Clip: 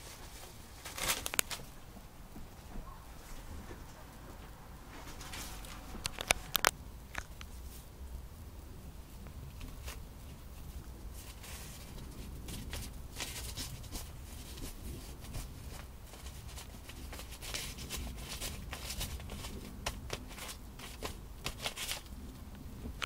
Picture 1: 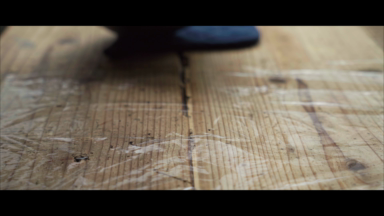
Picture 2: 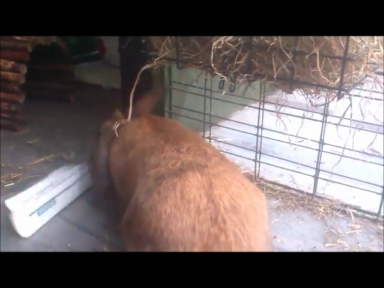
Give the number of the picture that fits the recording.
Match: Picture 2